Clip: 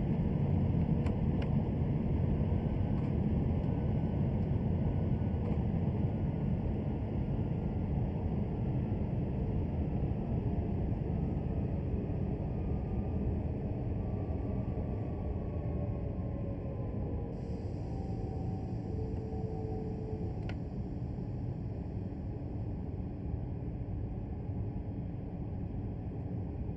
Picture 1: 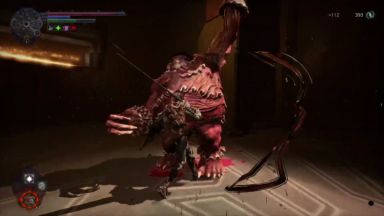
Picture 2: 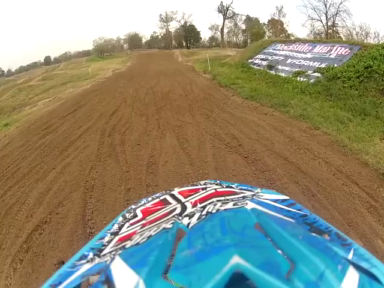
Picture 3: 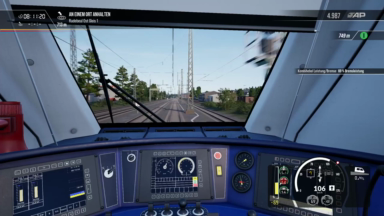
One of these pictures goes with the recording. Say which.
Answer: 3